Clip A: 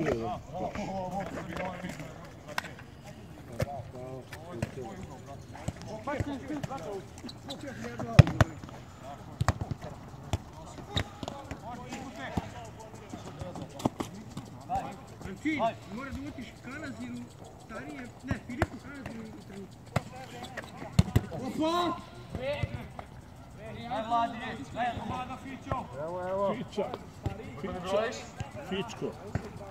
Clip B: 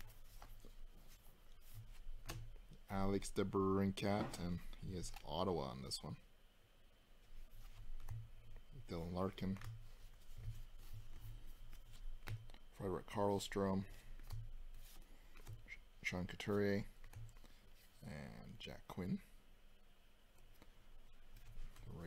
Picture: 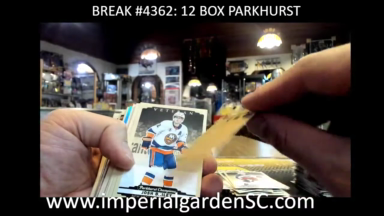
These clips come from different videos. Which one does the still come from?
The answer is B